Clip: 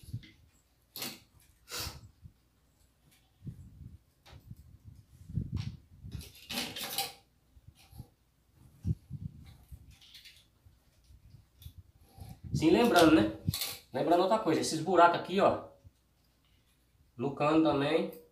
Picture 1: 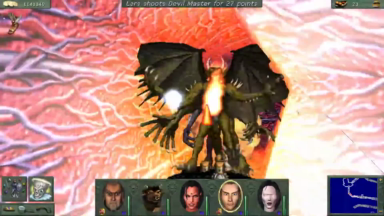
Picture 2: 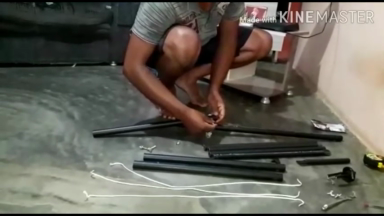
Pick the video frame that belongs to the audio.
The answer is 2